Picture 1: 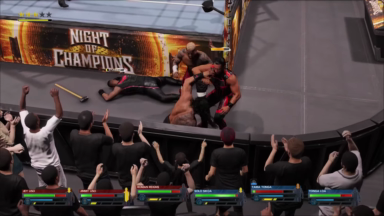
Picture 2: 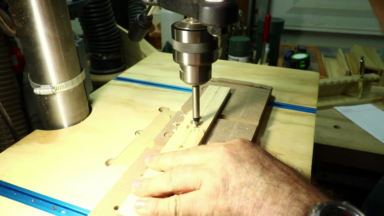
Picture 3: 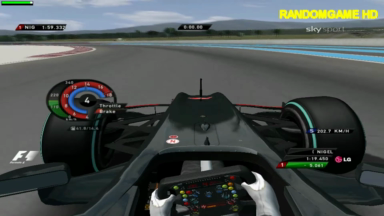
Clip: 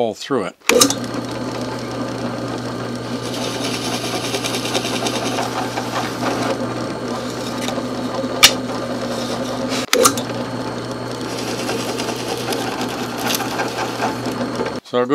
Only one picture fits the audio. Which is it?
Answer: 2